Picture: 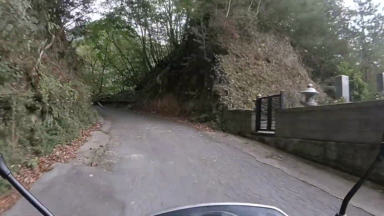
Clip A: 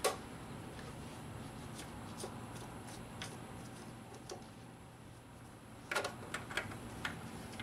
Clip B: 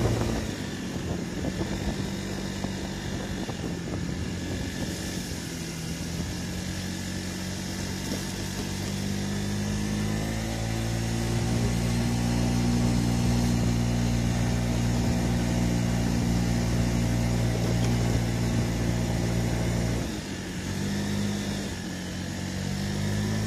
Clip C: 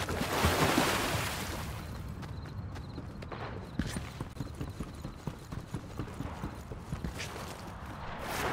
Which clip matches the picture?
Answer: B